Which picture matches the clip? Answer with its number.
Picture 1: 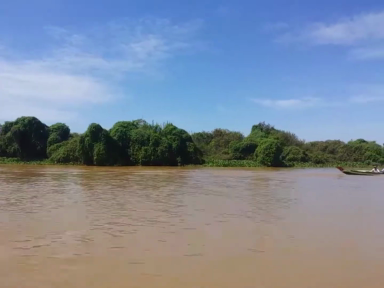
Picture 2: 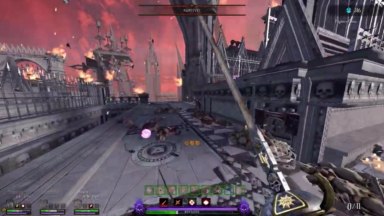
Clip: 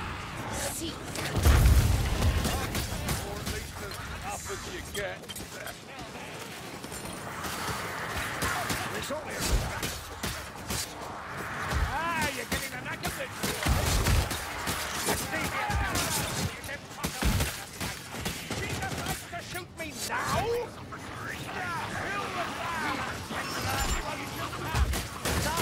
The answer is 2